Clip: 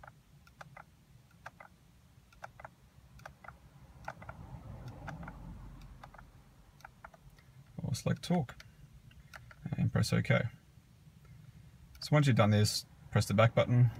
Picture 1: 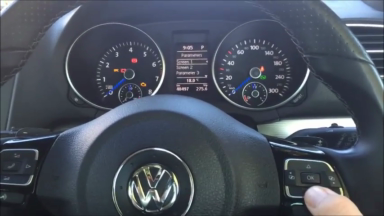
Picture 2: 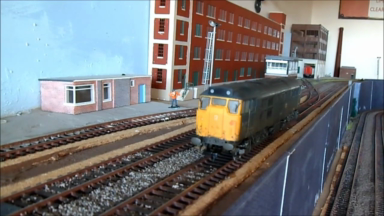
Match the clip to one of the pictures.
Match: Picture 1